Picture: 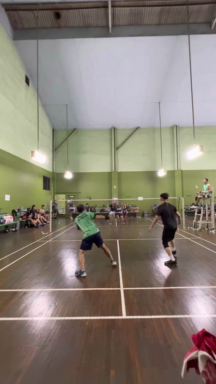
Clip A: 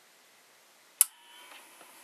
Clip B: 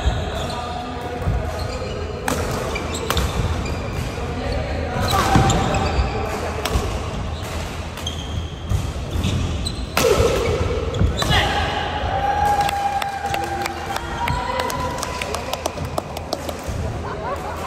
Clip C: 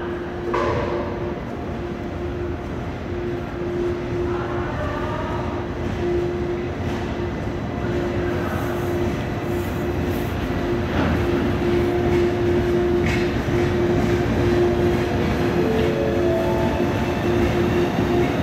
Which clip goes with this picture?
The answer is B